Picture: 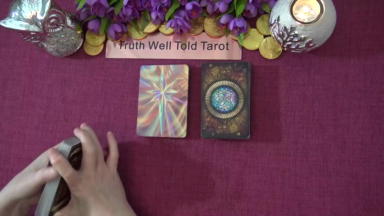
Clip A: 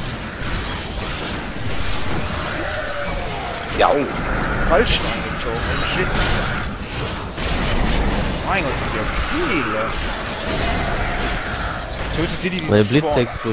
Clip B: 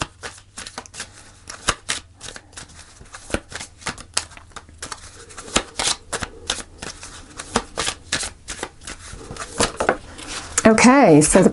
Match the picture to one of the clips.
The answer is B